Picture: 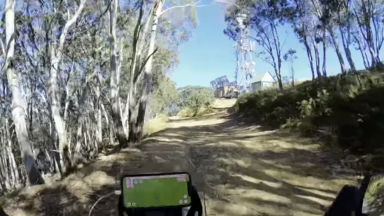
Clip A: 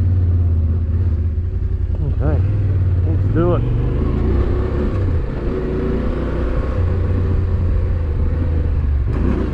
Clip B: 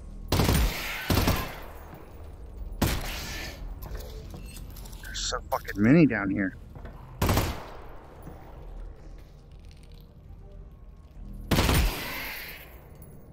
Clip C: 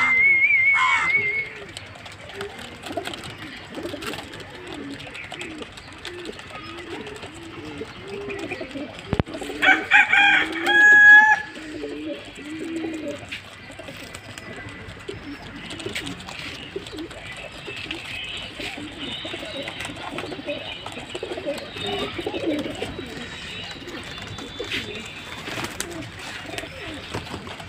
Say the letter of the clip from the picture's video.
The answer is A